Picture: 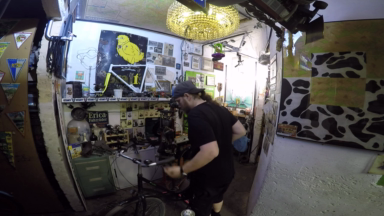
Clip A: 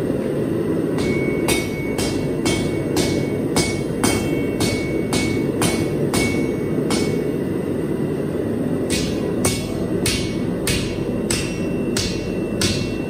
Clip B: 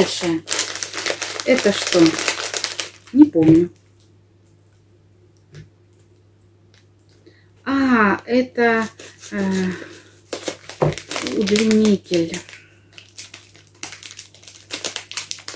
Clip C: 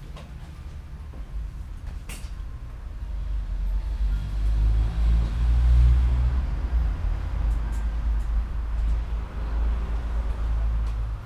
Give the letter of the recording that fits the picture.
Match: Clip C